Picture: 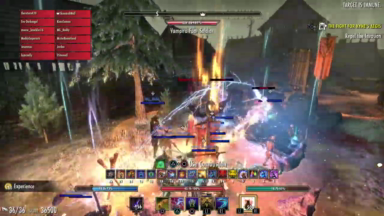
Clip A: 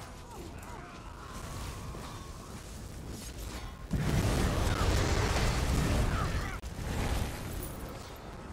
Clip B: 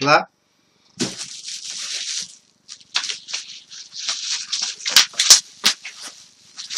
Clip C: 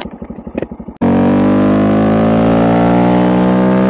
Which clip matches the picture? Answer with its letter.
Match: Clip A